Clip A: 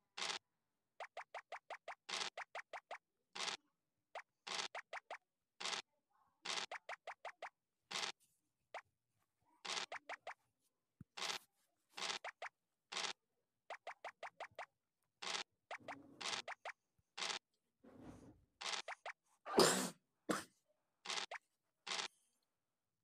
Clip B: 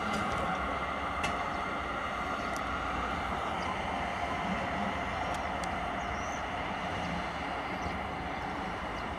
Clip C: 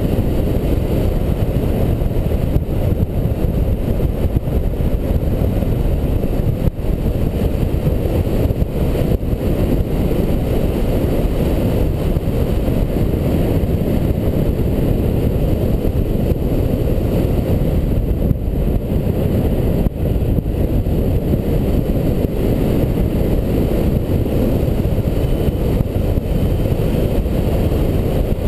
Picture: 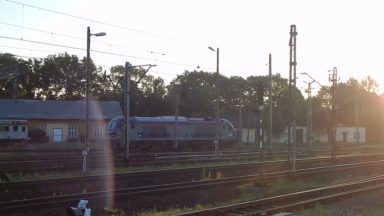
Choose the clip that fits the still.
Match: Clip B